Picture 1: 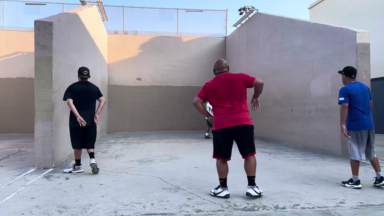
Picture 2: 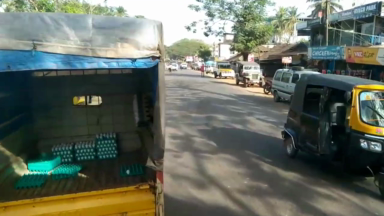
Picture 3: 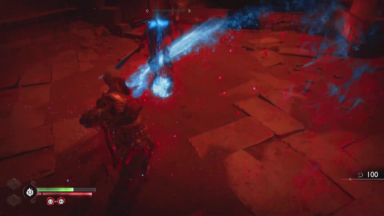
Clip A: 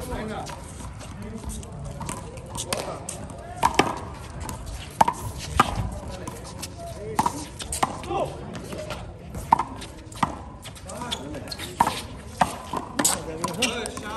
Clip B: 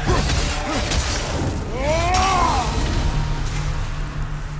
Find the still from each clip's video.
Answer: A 1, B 3